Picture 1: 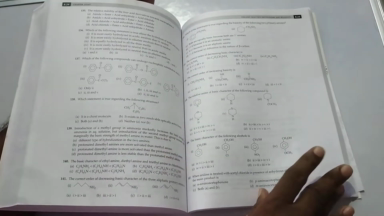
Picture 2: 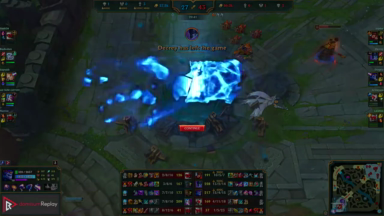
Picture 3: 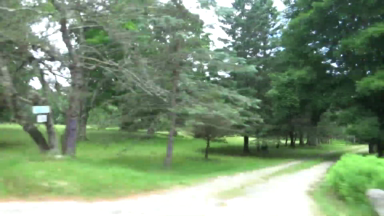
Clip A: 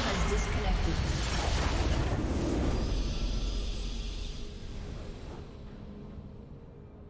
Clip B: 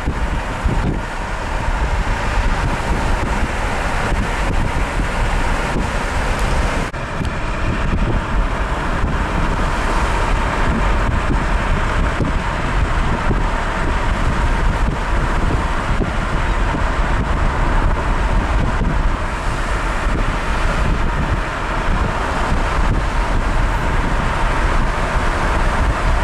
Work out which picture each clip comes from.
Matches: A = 2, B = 3